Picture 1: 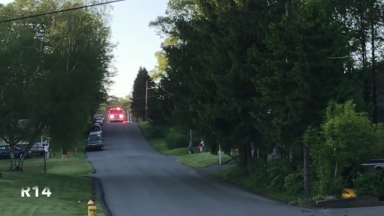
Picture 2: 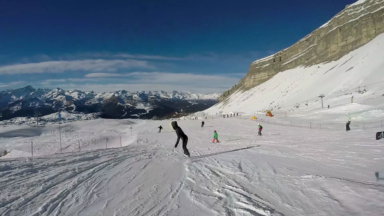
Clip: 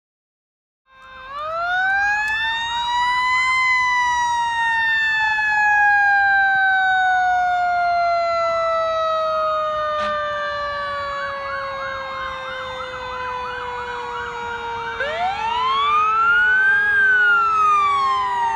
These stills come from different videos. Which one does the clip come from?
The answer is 1